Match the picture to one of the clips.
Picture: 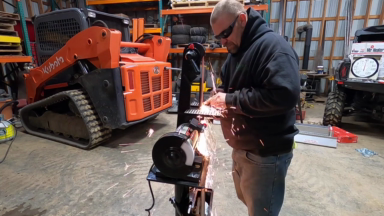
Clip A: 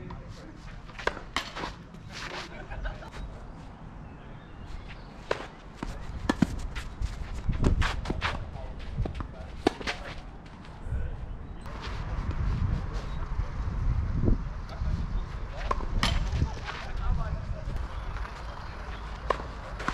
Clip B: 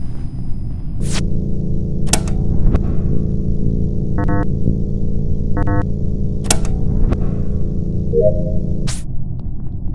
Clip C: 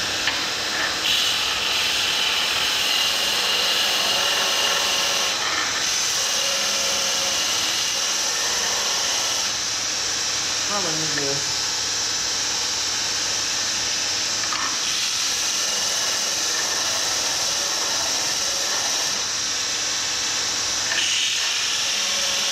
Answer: C